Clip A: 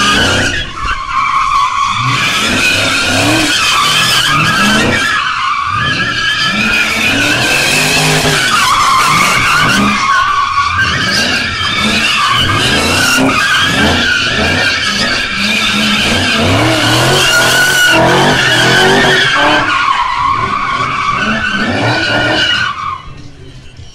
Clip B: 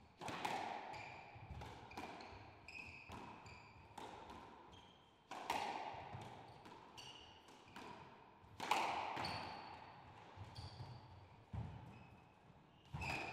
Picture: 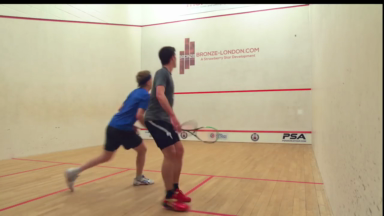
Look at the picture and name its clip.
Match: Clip B